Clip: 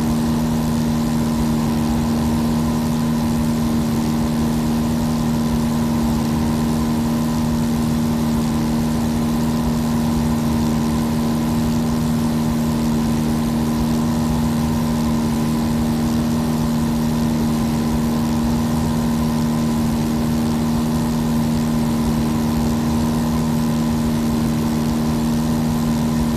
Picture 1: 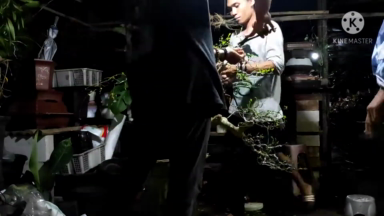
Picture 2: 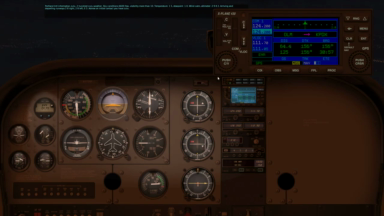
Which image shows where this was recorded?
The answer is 2